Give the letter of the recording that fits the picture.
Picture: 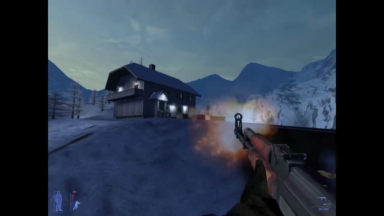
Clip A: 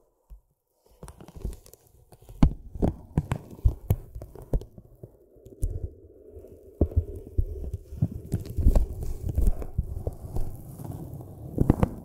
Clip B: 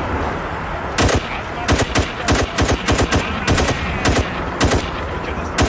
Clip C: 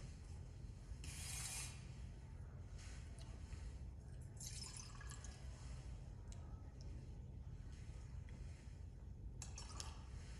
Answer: B